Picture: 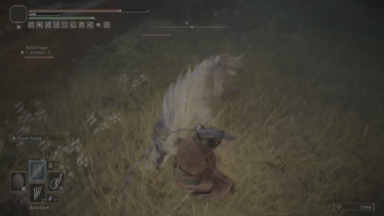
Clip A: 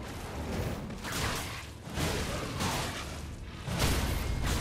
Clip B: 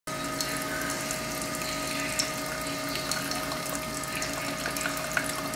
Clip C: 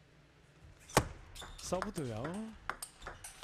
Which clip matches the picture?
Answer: A